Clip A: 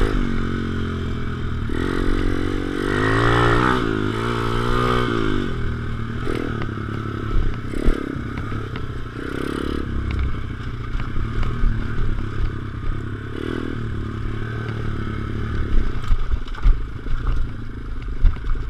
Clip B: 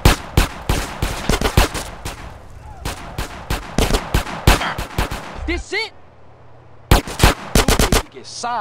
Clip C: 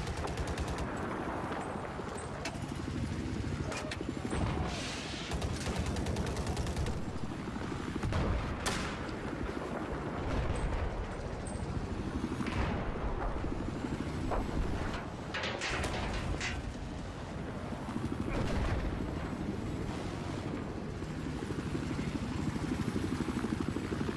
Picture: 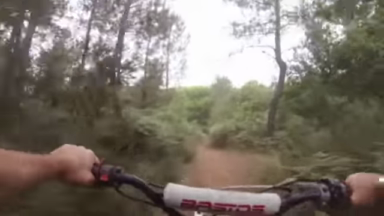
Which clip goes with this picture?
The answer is A